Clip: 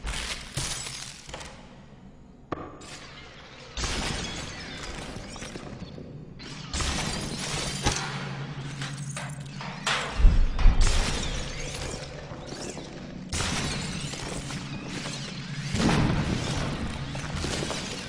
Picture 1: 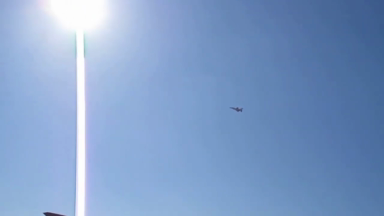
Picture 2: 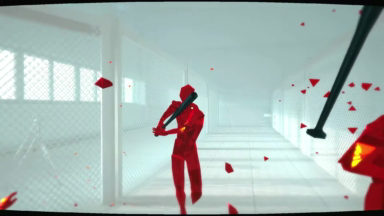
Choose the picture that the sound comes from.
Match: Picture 2